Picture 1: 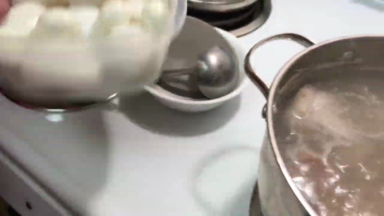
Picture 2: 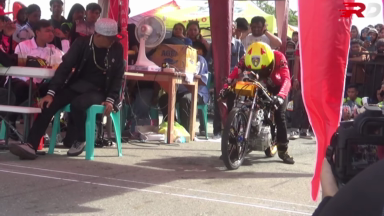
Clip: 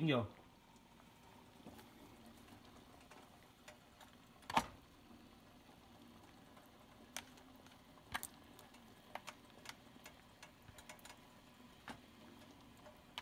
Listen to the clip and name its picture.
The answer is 1